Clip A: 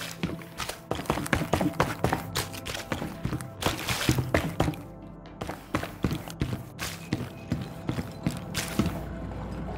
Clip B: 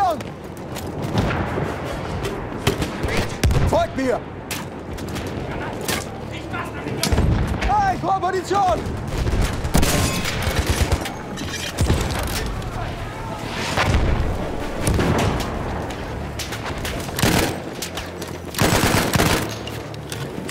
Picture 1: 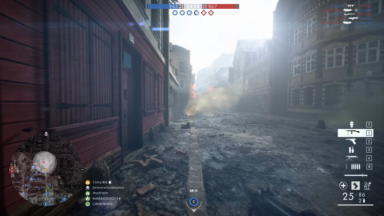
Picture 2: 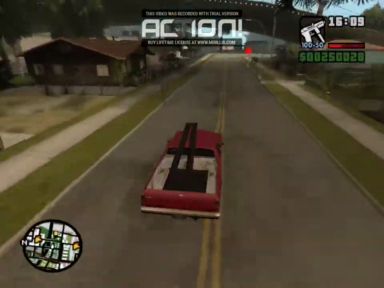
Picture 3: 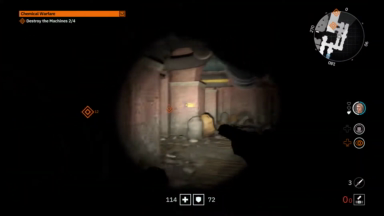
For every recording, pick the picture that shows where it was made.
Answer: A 3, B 1